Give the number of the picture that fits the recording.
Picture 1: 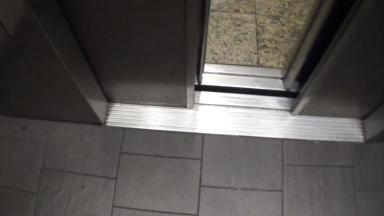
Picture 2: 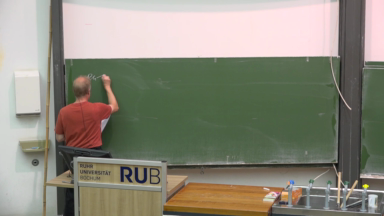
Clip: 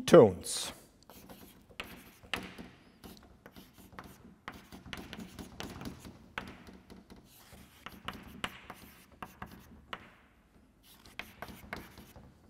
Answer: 2